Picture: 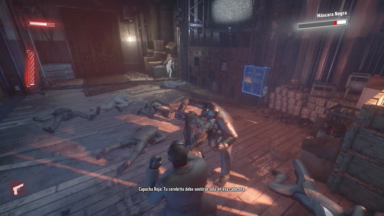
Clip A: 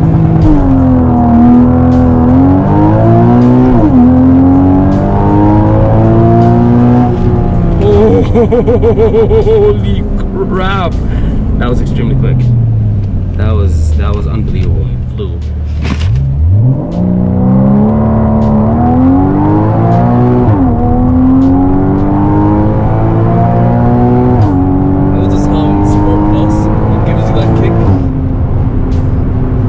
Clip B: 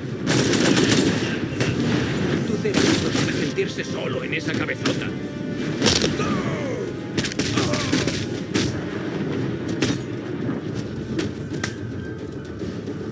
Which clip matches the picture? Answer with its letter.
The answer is B